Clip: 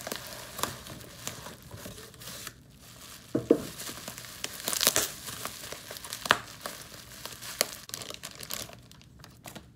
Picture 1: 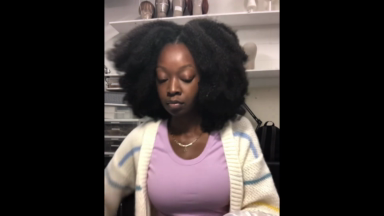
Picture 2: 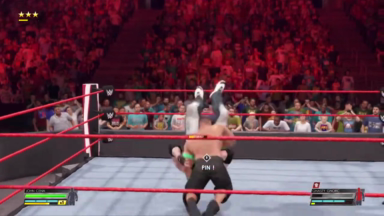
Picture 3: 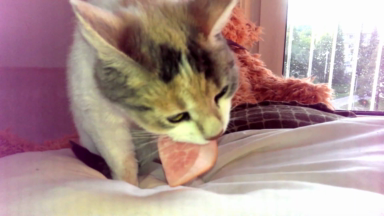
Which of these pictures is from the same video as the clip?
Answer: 1